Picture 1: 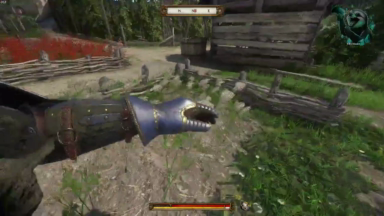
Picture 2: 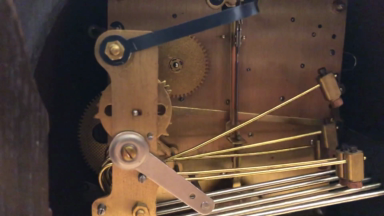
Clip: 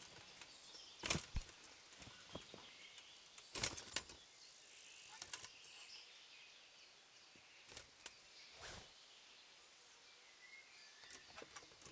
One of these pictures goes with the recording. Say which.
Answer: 1